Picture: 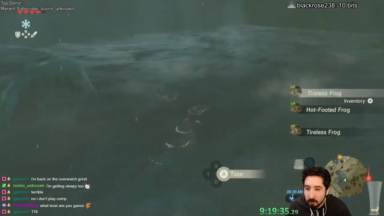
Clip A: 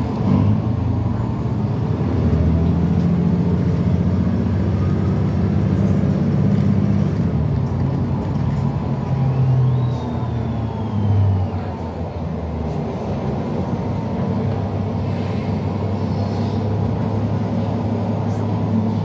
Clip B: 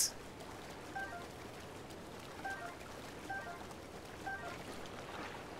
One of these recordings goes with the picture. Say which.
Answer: B